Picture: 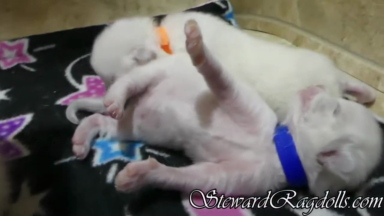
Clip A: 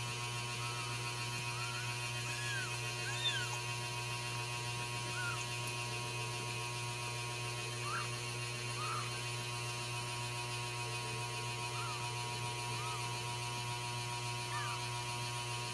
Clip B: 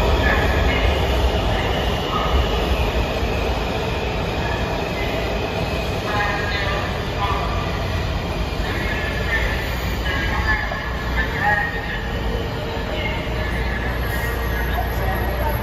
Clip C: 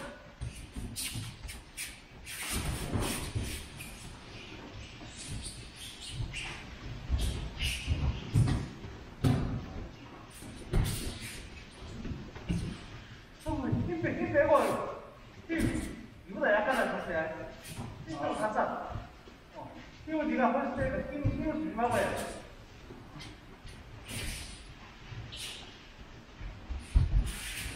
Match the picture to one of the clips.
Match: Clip A